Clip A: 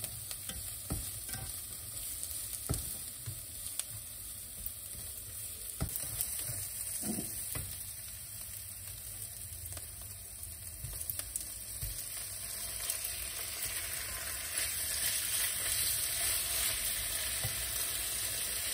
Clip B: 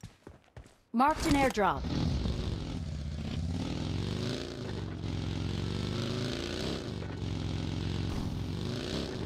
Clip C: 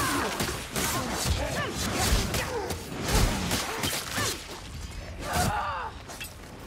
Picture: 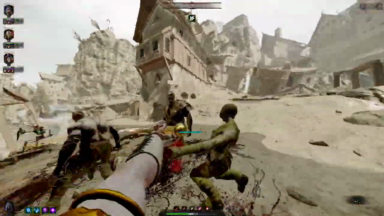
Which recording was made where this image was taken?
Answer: C